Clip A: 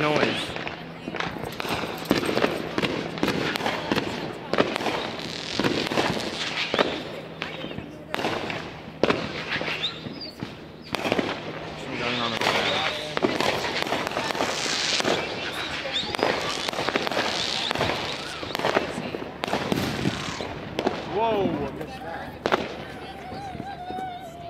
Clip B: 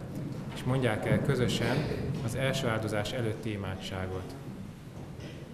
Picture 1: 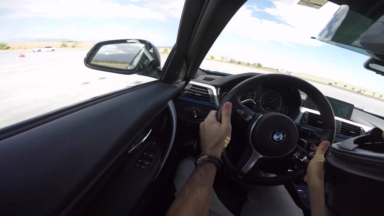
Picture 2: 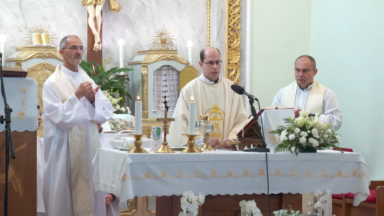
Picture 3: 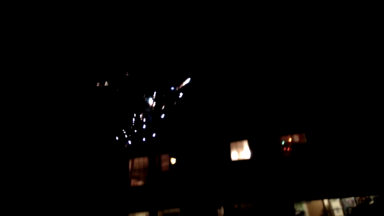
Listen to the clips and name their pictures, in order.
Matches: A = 3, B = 2